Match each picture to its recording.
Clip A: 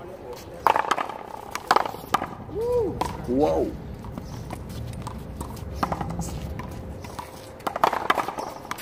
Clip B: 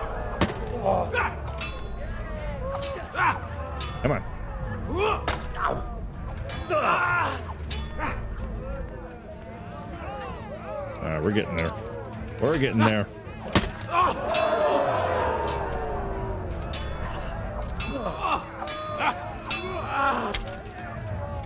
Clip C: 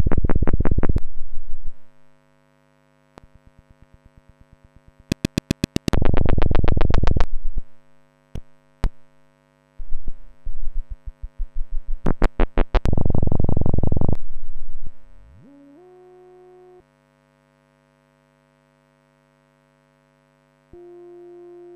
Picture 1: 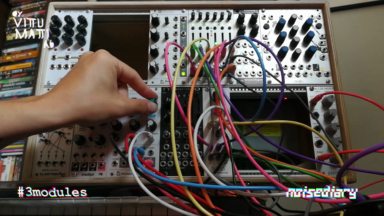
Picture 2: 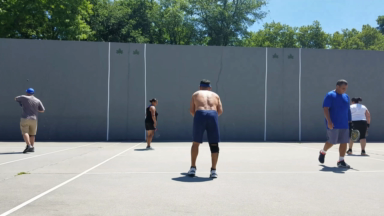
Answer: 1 C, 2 A